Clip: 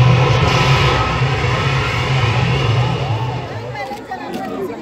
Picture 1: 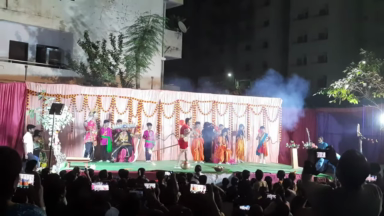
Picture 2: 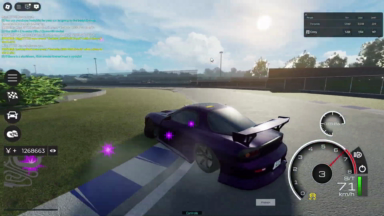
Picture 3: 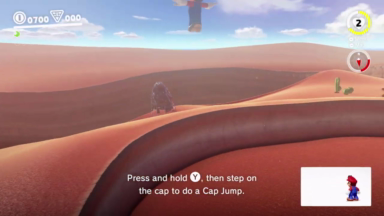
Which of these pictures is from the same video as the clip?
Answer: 1